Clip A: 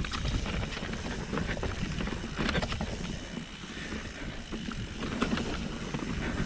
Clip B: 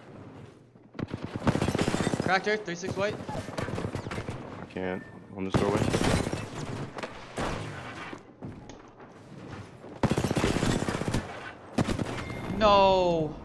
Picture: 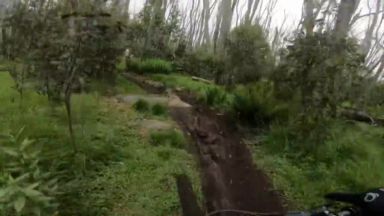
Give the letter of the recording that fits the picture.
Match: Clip A